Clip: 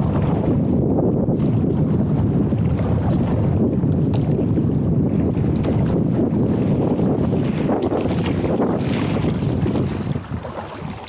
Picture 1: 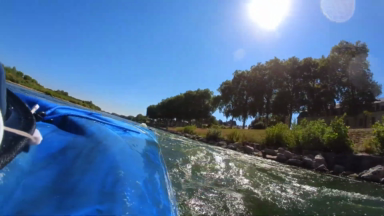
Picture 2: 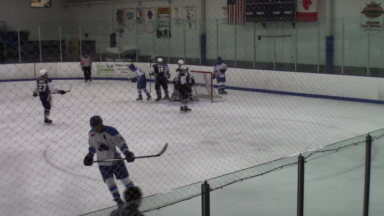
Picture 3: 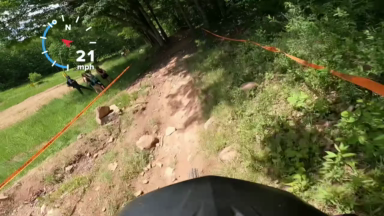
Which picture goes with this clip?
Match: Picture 1